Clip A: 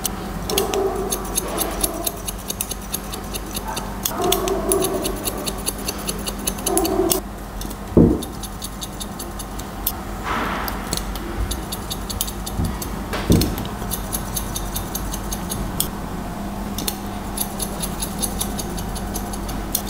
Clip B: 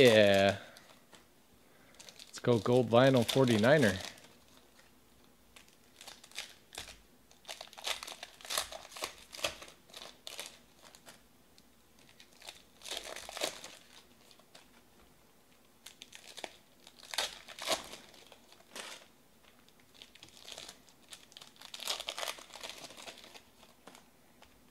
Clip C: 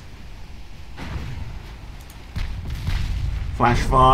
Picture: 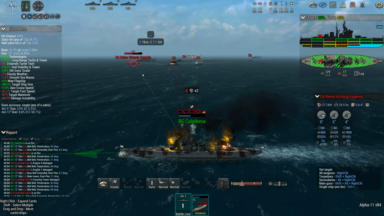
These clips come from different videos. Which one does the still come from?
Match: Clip C